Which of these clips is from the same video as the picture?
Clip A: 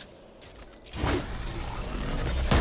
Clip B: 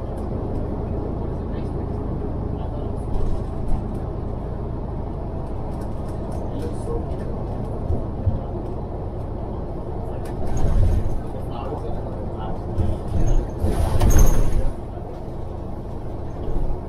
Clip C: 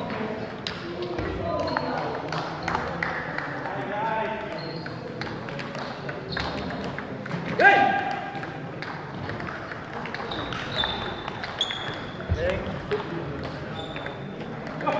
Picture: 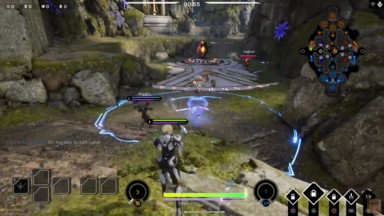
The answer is A